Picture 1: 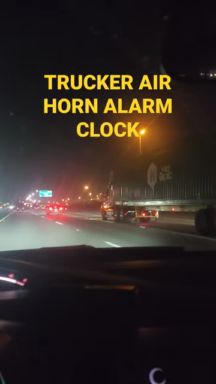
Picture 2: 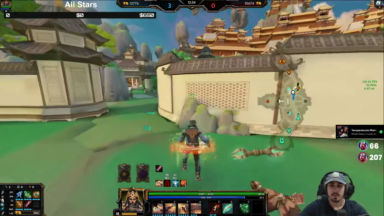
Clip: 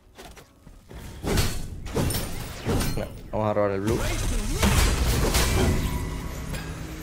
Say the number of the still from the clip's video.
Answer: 2